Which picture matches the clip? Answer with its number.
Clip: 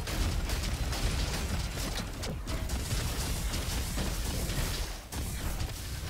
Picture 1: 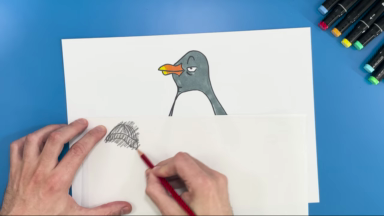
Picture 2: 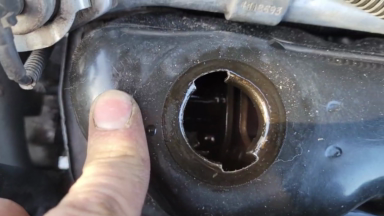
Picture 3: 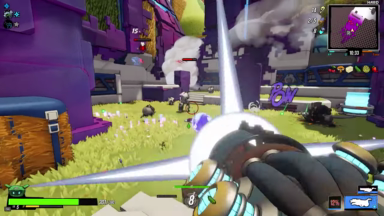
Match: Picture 3